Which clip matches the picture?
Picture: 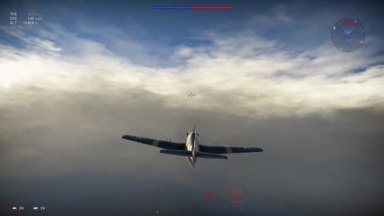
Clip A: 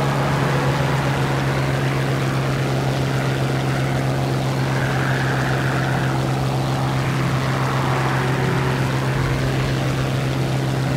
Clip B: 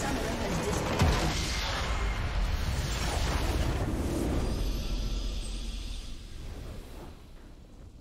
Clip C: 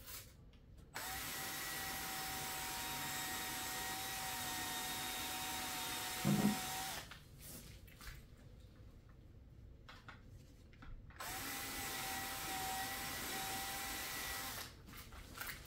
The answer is A